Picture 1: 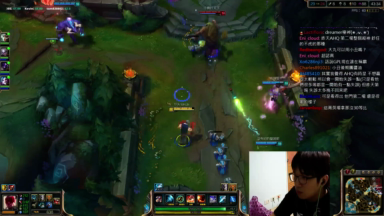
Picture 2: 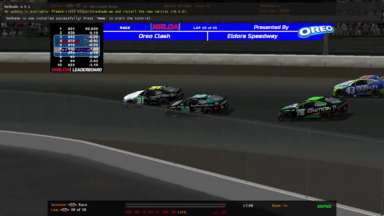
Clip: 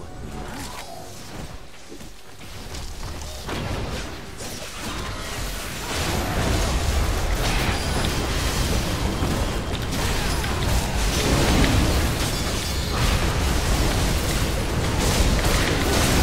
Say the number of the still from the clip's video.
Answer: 1